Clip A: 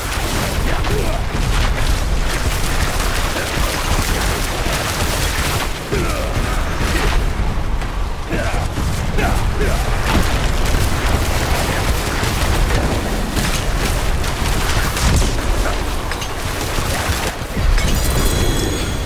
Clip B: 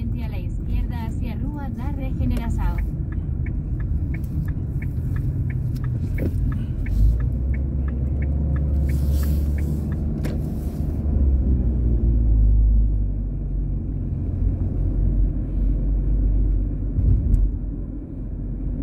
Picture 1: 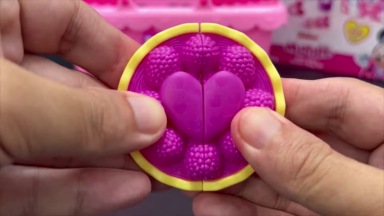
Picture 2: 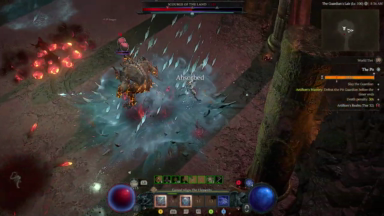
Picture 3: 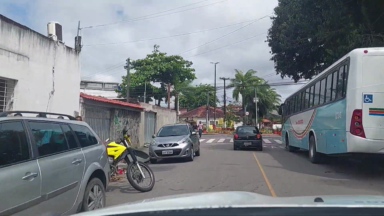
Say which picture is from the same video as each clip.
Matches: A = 2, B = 3